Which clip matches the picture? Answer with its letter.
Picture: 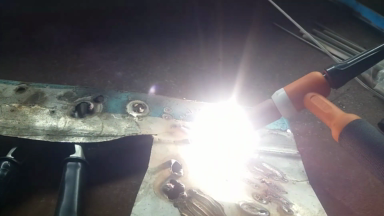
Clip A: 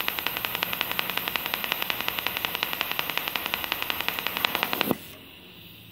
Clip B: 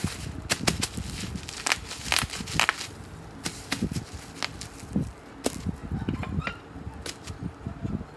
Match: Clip A